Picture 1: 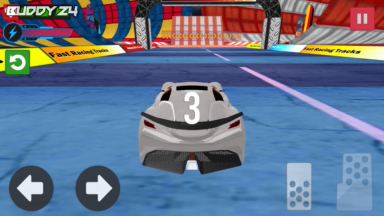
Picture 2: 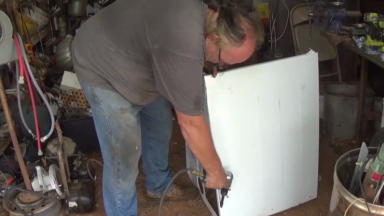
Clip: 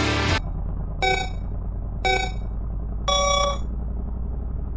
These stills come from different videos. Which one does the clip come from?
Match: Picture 1